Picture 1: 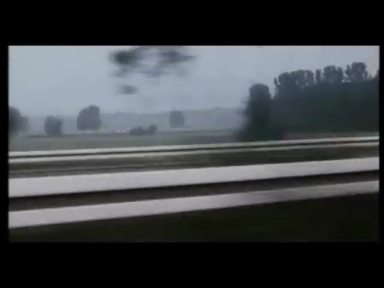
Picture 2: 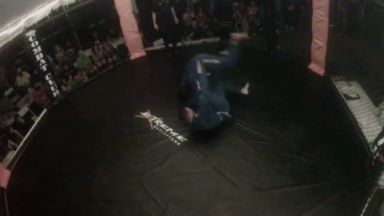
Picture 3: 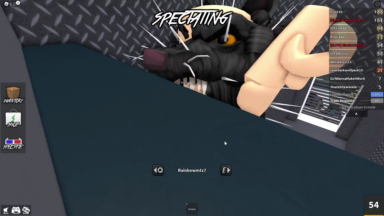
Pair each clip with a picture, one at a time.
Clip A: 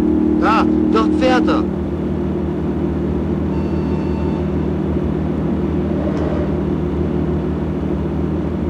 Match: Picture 1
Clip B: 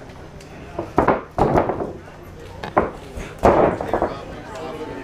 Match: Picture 2